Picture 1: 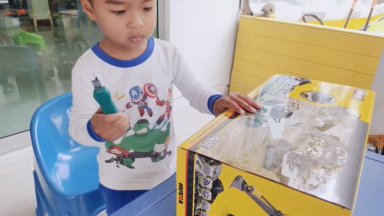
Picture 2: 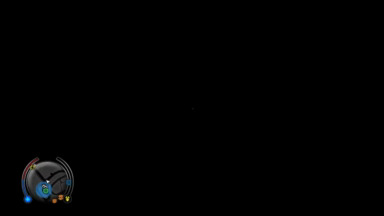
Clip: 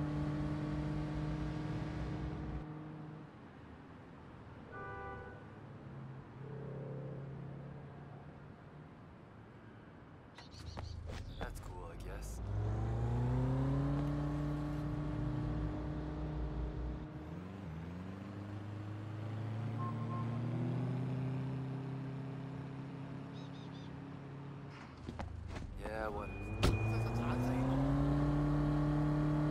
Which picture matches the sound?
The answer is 2